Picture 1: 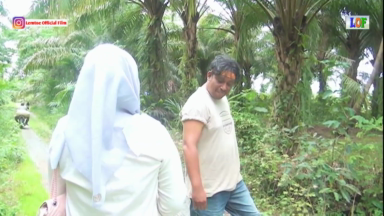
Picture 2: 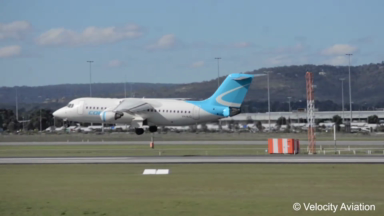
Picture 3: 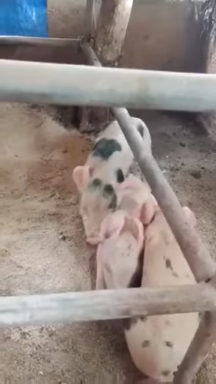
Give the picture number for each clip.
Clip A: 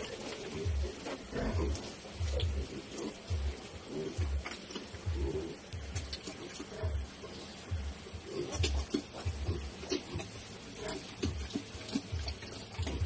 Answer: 3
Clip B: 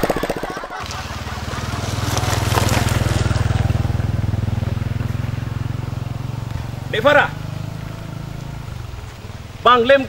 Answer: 1